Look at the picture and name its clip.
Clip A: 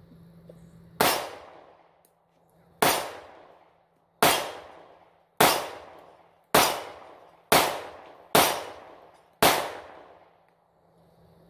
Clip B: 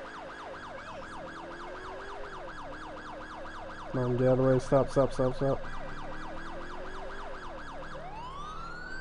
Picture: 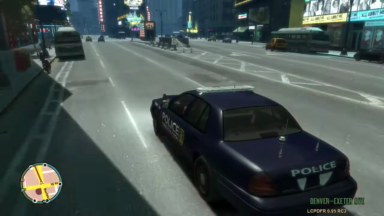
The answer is B